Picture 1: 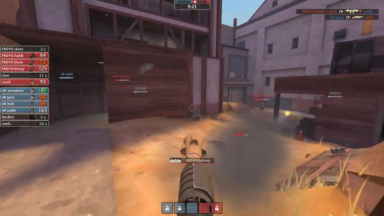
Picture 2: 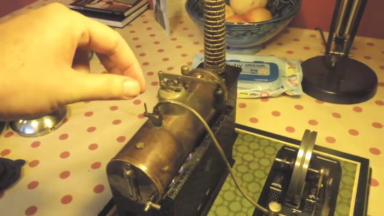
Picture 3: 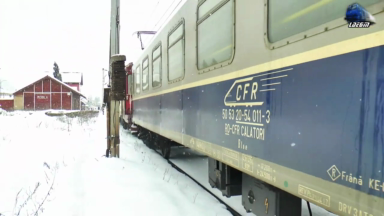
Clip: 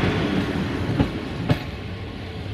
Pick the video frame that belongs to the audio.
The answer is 3